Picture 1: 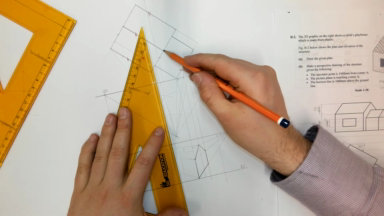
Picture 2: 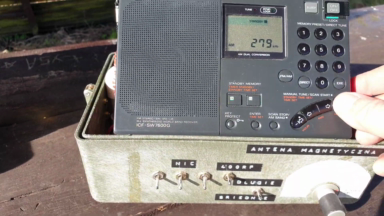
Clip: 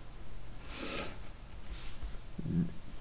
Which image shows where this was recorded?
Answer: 1